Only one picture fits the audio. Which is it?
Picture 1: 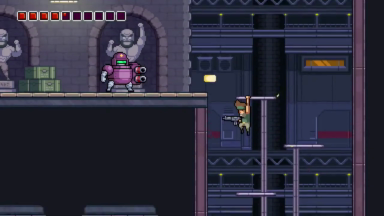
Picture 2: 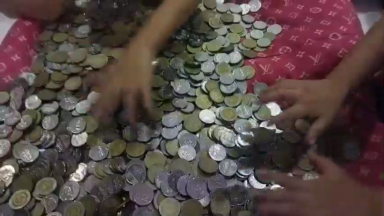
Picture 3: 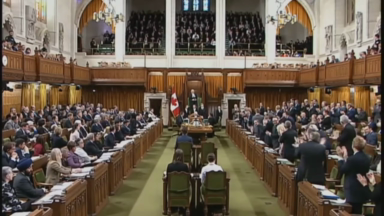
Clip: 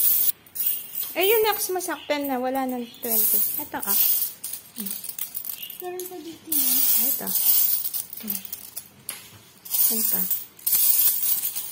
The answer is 2